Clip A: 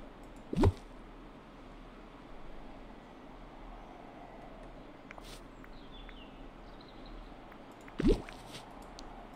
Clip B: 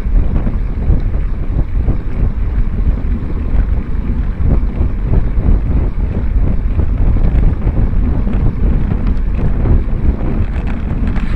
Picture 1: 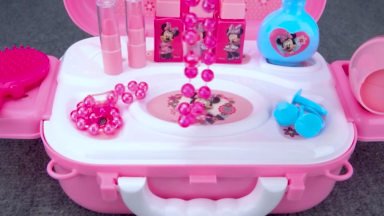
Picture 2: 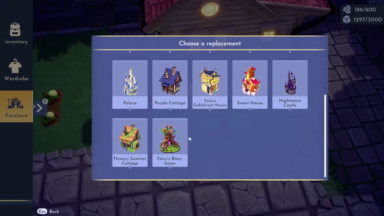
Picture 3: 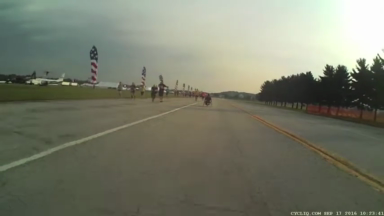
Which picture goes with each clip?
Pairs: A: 2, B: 3